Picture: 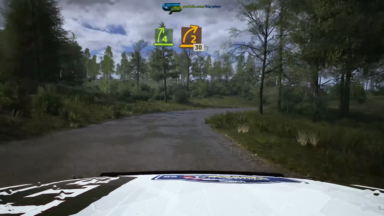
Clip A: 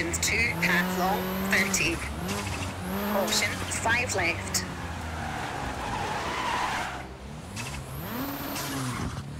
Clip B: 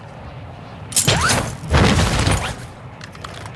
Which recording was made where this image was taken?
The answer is A